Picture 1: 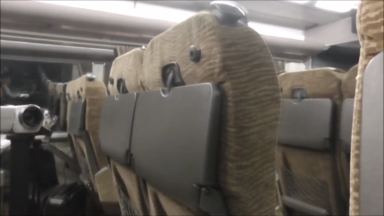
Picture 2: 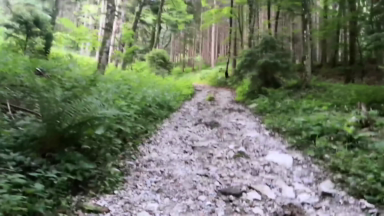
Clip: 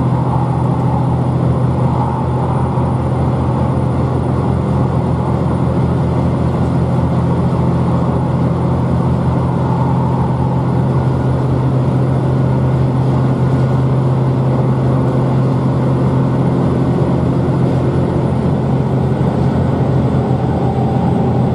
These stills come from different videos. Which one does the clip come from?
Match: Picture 1